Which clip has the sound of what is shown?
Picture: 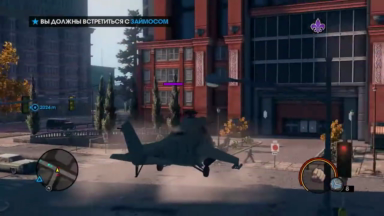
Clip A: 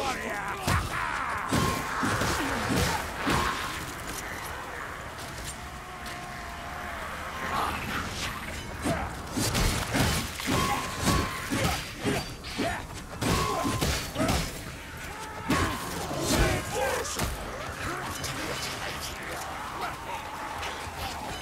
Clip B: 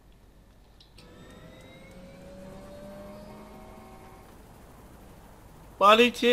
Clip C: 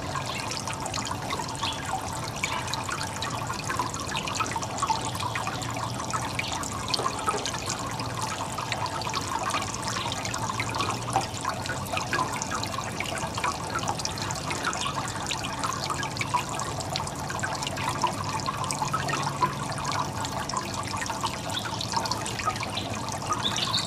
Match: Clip B